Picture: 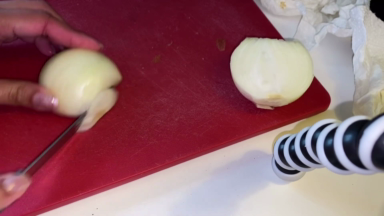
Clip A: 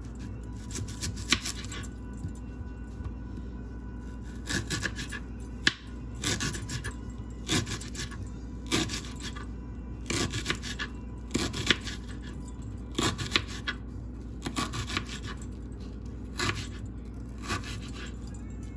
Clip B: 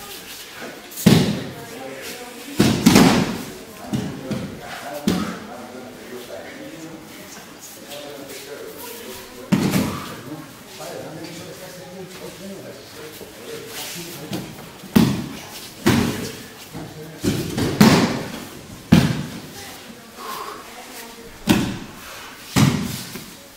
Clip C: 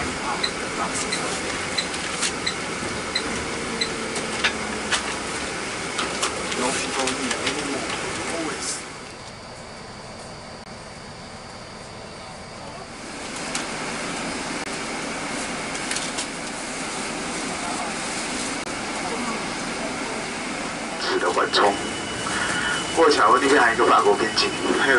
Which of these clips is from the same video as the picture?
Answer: A